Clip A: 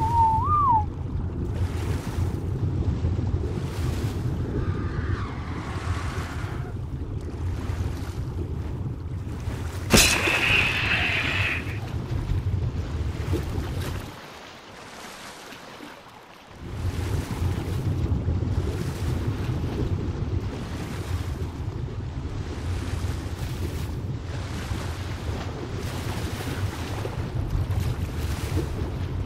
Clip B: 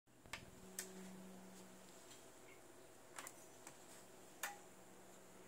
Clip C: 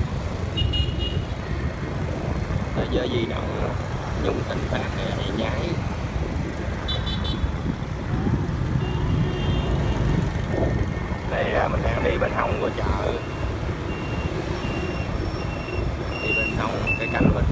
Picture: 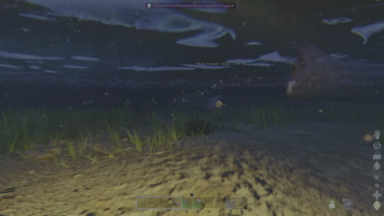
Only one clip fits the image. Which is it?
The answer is A